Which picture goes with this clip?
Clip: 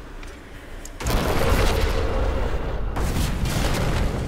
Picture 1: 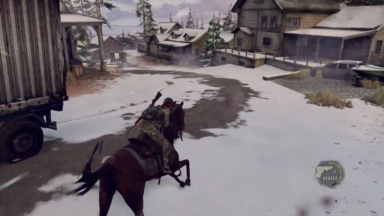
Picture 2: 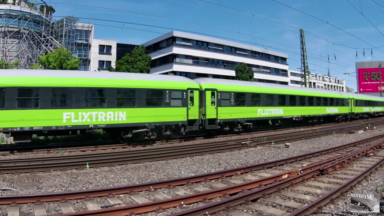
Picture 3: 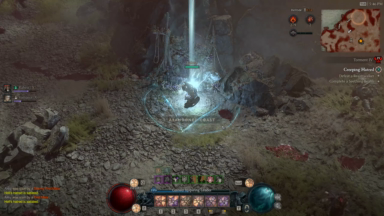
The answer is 3